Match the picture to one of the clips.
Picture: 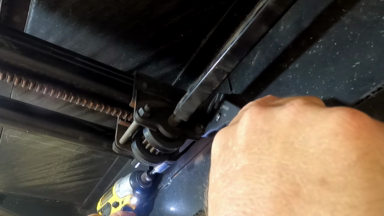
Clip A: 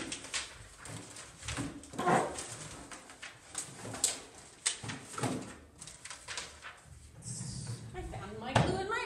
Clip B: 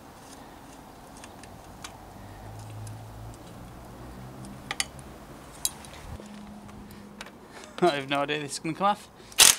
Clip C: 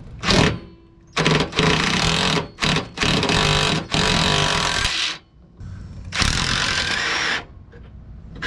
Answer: C